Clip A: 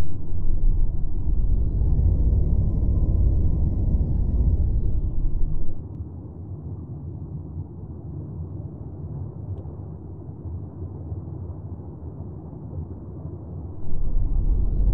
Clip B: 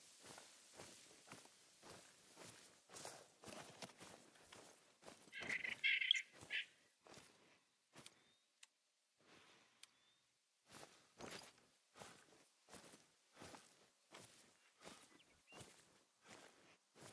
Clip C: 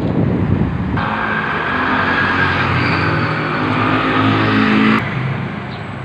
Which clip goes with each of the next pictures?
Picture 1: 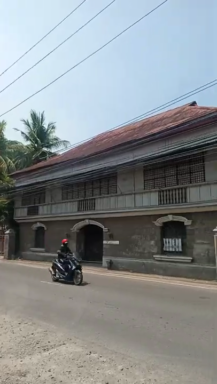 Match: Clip C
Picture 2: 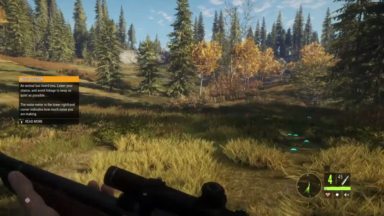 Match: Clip B